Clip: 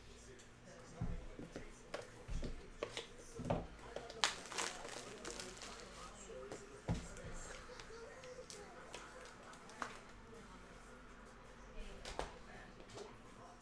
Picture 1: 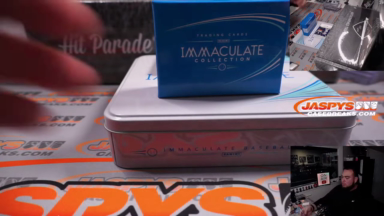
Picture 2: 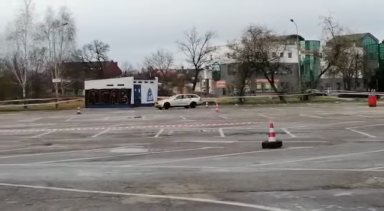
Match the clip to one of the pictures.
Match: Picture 1